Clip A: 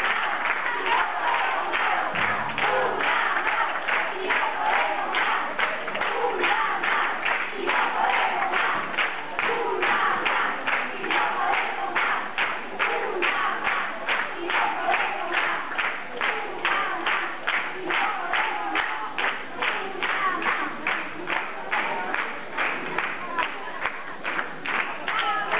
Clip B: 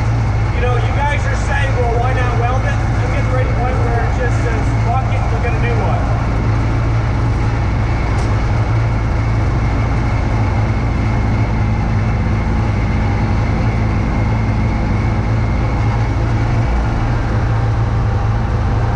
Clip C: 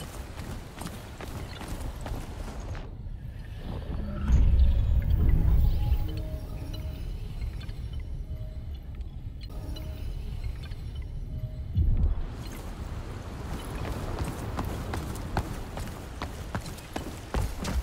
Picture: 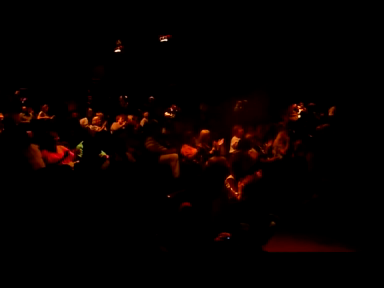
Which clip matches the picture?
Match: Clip A